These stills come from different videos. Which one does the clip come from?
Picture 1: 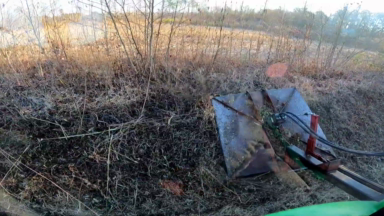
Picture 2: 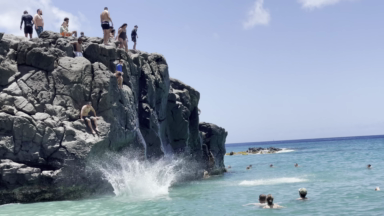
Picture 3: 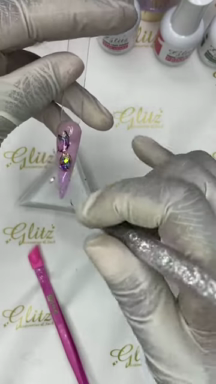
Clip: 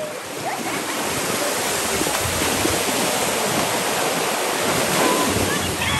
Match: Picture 2